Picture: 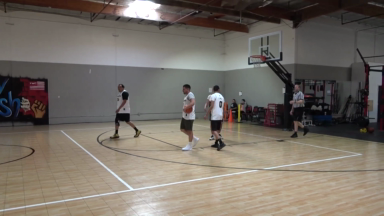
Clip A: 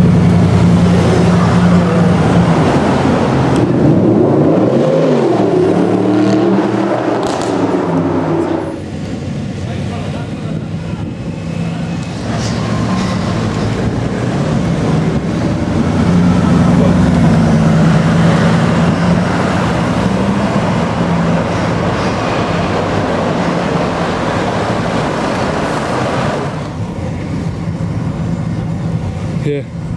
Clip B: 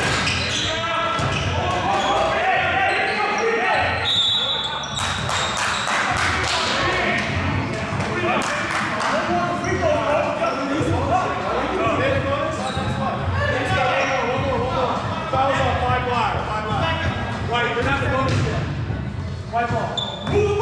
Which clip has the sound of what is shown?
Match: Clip B